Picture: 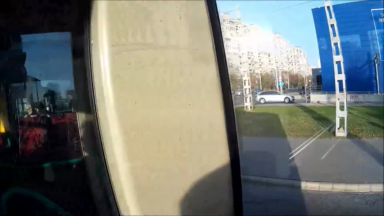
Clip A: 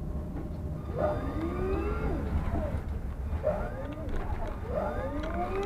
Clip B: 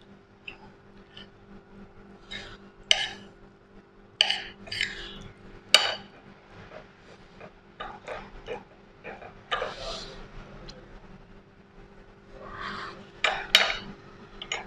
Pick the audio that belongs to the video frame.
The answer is A